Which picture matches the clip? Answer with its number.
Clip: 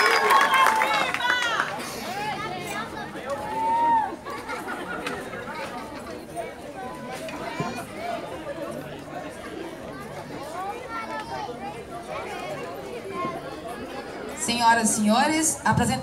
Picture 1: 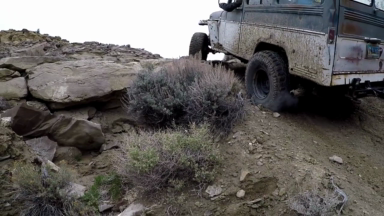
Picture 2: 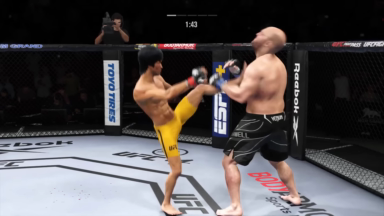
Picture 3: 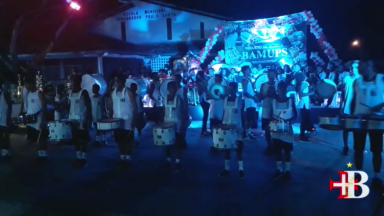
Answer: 3